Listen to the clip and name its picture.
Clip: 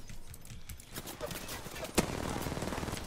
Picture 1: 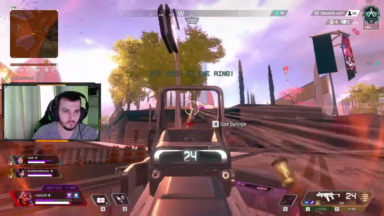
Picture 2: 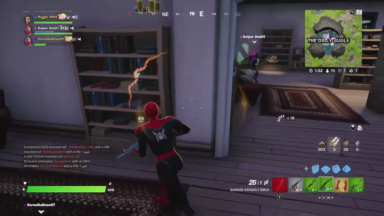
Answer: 1